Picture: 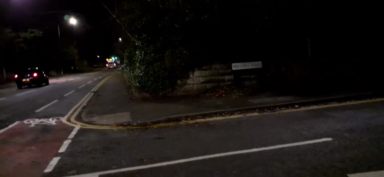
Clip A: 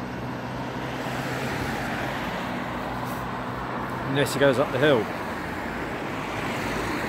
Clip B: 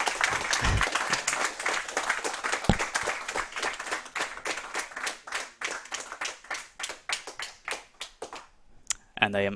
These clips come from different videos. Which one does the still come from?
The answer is A